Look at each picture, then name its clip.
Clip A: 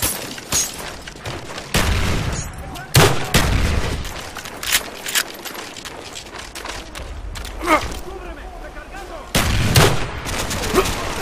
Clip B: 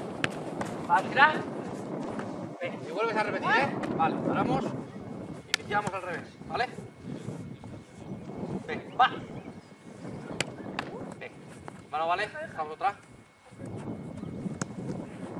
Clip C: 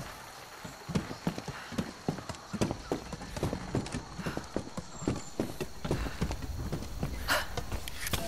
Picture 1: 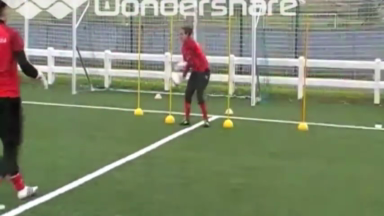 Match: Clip B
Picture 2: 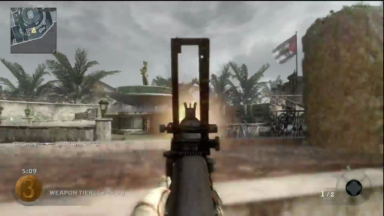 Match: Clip A